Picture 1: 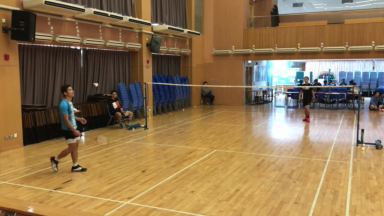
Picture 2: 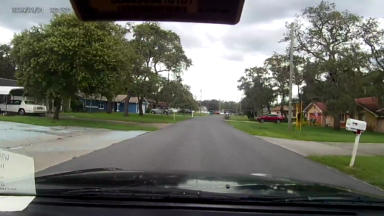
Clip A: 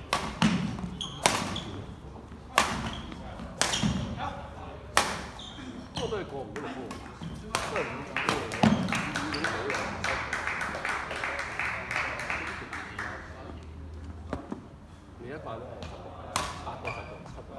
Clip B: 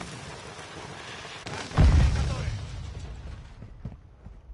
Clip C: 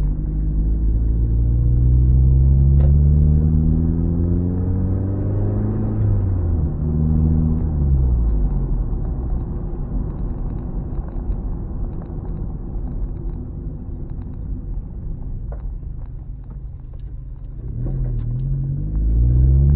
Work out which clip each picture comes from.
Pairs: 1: A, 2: C